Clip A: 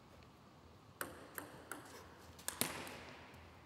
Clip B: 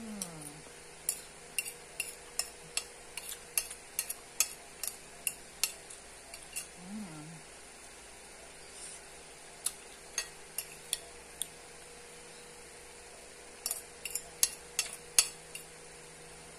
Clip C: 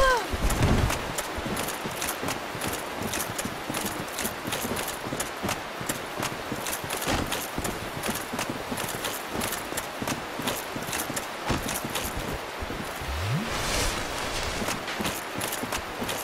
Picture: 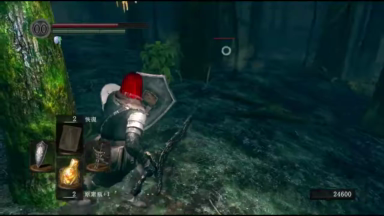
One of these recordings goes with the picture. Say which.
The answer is C